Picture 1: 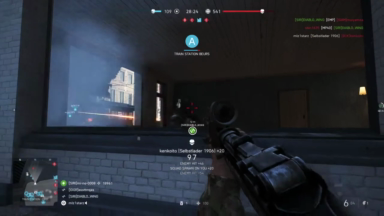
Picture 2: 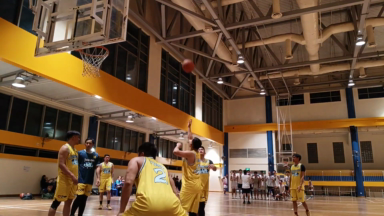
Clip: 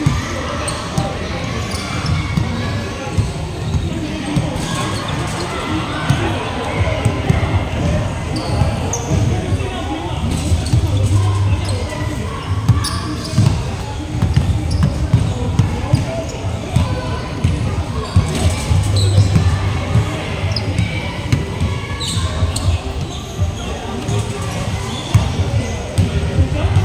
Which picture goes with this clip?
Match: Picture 2